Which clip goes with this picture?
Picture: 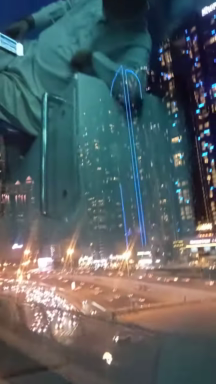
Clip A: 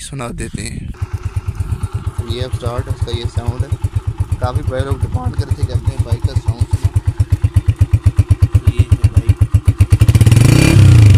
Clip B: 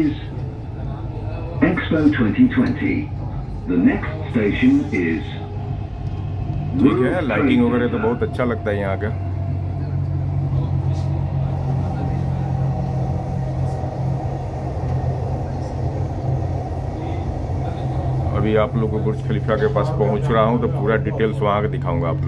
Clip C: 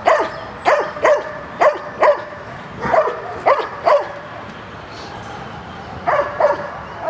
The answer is B